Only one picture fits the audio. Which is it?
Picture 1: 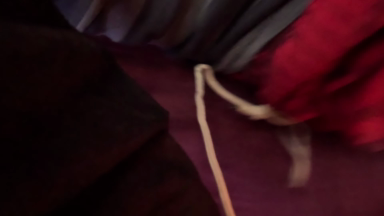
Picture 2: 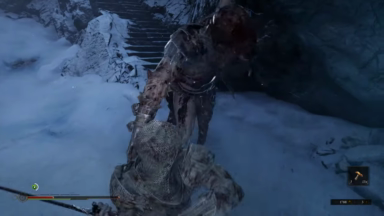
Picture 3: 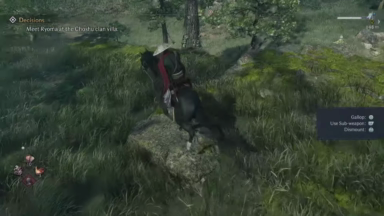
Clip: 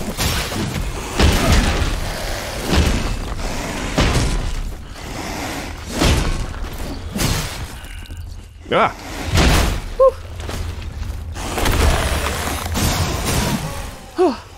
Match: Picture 2